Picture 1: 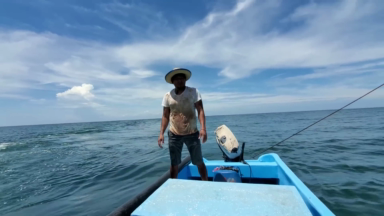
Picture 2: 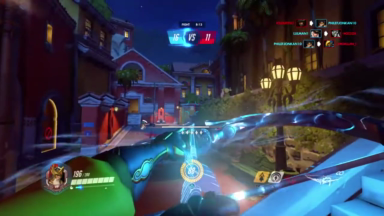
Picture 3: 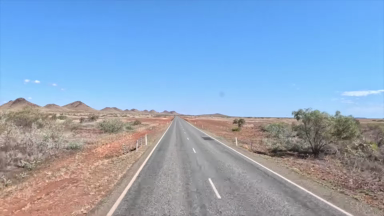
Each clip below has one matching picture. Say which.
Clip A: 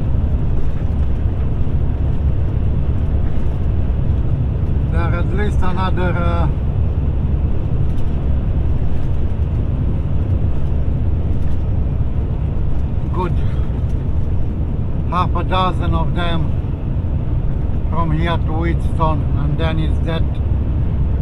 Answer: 3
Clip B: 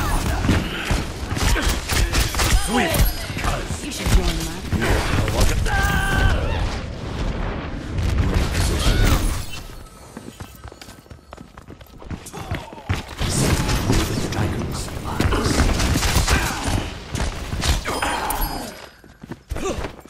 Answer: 2